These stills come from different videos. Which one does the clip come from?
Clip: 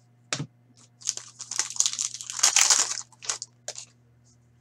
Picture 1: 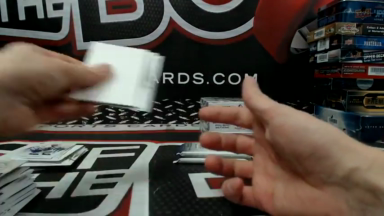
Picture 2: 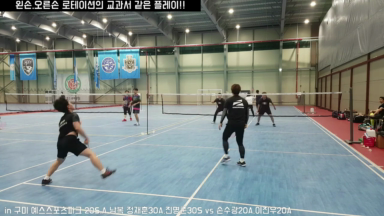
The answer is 1